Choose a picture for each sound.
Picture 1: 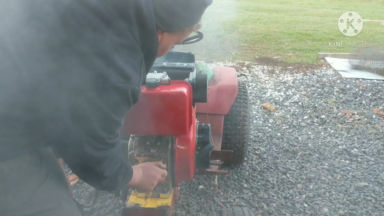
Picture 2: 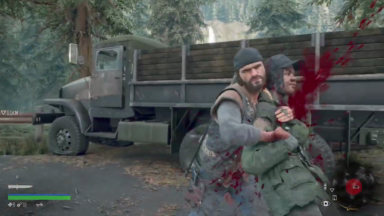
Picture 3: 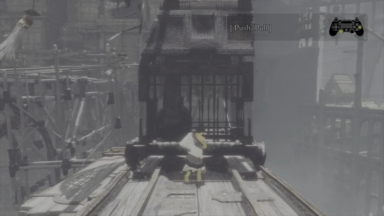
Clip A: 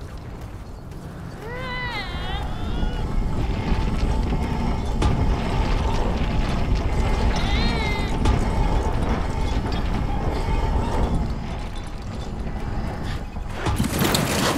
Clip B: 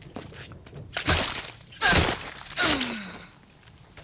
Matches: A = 3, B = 2